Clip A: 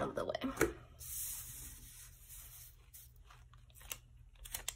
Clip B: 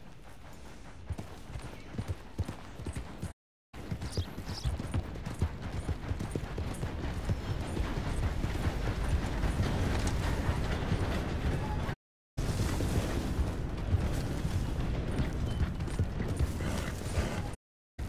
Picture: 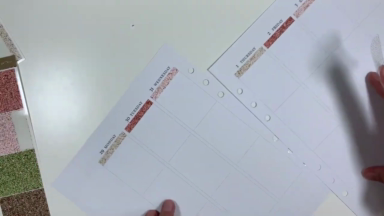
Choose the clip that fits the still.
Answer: A